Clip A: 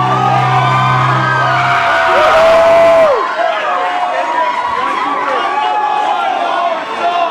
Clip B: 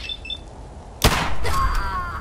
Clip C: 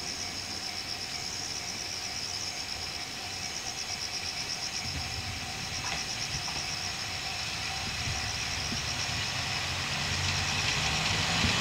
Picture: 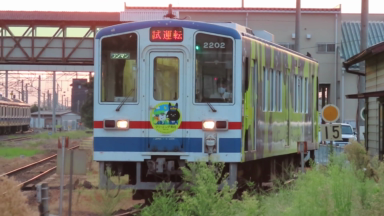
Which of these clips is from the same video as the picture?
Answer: C